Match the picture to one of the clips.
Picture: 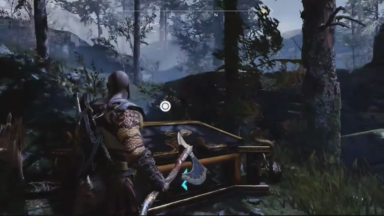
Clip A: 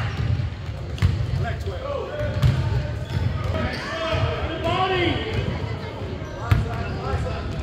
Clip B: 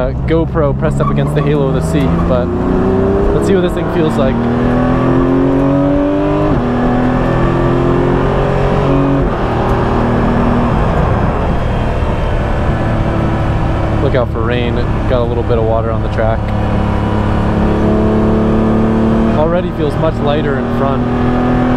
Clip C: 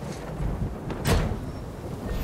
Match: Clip C